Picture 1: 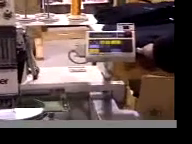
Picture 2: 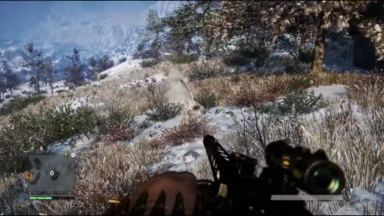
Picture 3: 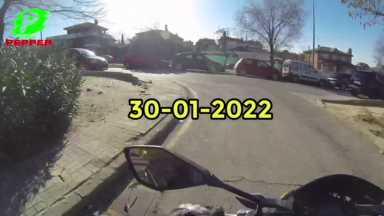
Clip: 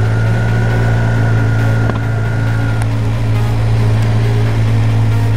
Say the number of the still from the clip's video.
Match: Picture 3